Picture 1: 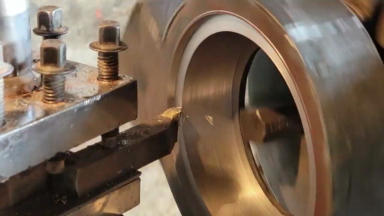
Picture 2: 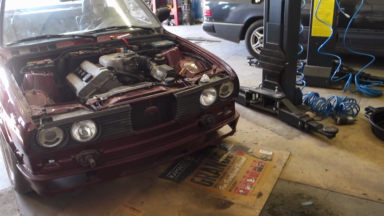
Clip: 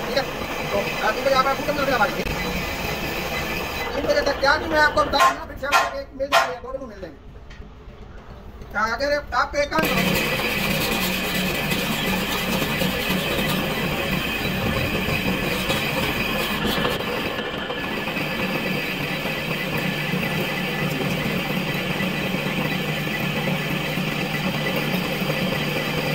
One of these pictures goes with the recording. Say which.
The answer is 1